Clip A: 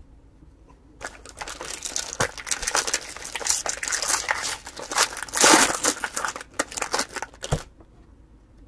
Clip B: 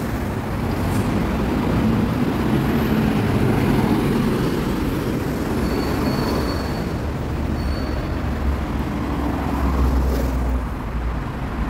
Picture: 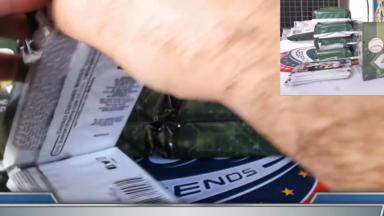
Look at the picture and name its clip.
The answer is A